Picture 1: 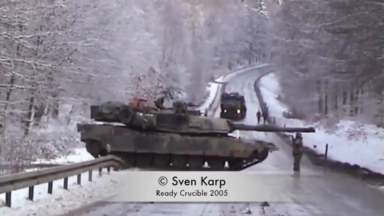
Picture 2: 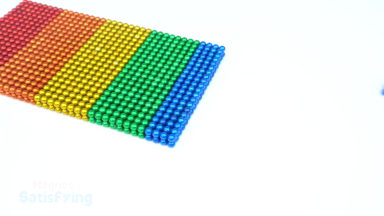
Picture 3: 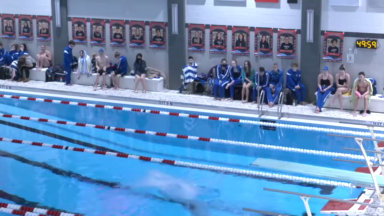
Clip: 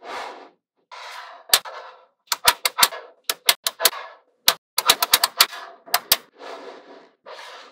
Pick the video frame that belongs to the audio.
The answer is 2